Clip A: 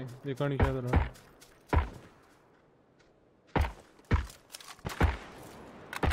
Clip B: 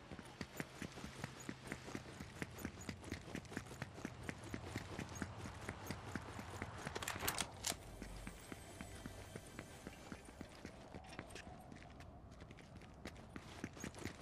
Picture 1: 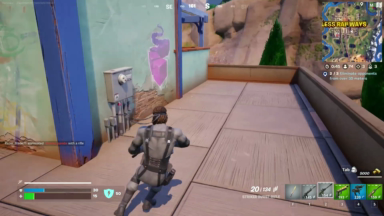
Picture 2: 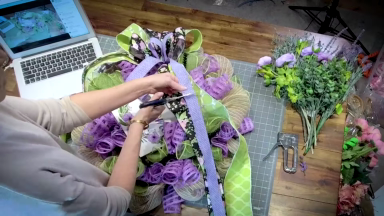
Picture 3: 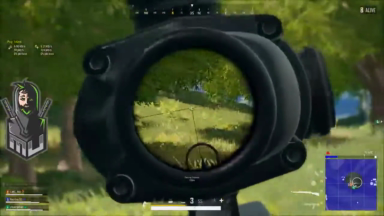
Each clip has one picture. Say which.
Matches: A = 3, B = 1